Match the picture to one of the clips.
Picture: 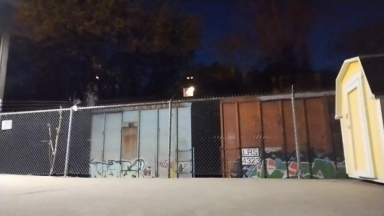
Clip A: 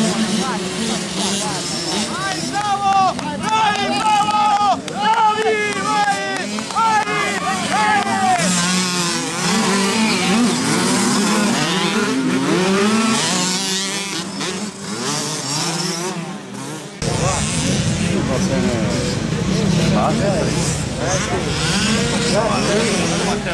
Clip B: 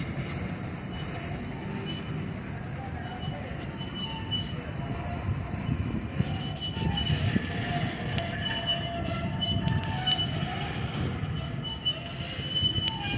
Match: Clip B